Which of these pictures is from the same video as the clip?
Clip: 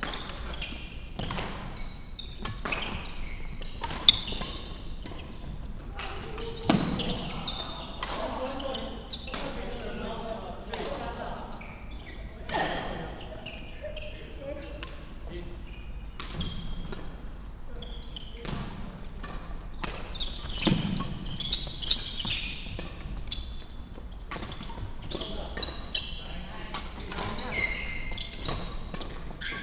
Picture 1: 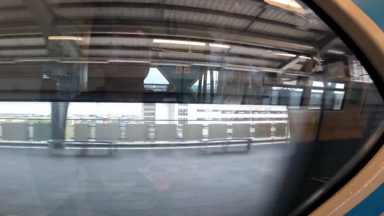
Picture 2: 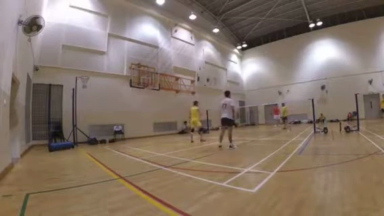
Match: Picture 2